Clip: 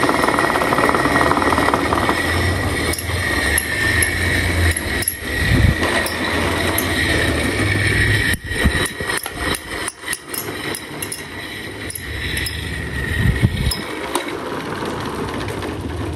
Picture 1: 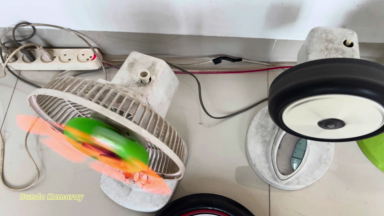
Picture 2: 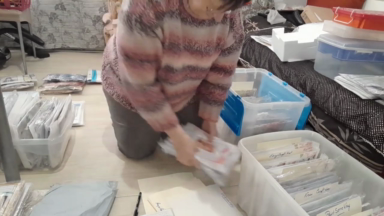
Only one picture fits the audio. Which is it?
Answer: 1